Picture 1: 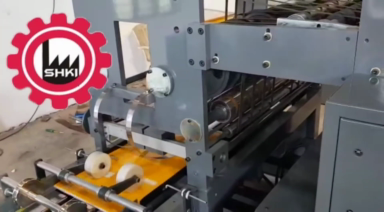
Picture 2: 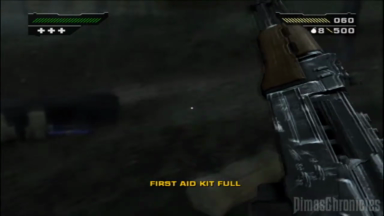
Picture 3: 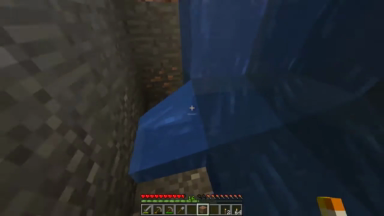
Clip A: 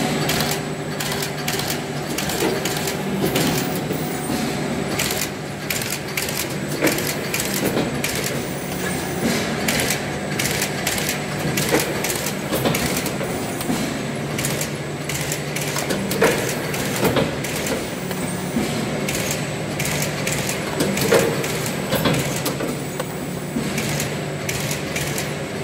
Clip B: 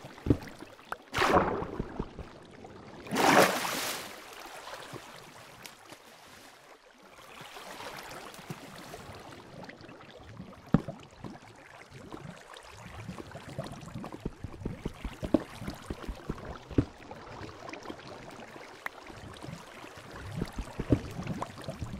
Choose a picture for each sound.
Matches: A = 1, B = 3